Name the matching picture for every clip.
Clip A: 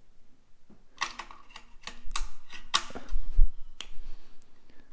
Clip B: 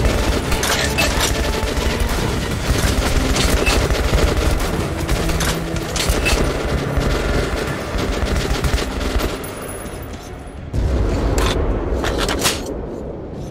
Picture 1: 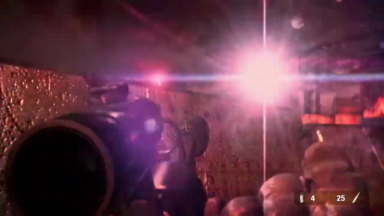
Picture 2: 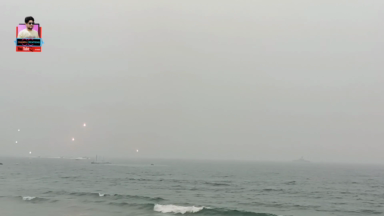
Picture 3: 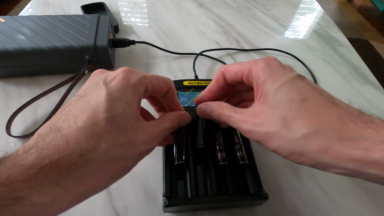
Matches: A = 3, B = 1